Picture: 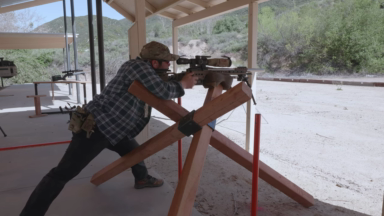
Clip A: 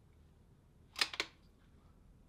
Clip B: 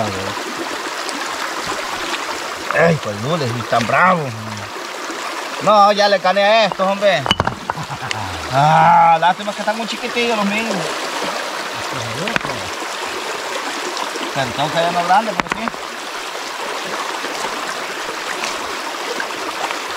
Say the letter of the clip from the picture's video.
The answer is A